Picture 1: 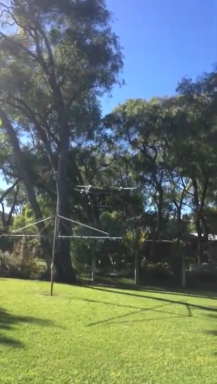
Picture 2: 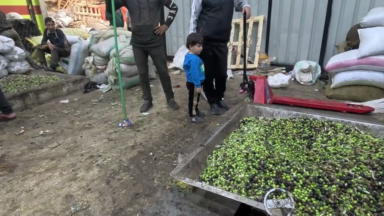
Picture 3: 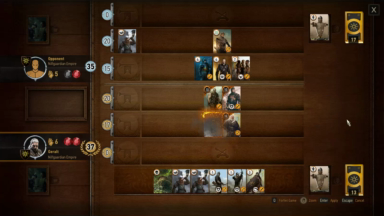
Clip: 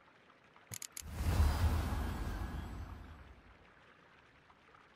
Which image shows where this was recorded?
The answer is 3